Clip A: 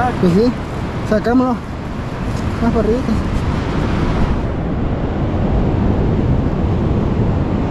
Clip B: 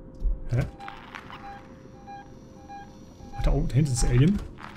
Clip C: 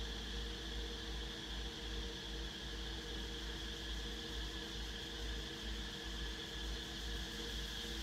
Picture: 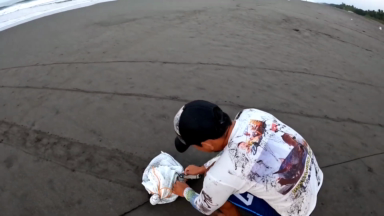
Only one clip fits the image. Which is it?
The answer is A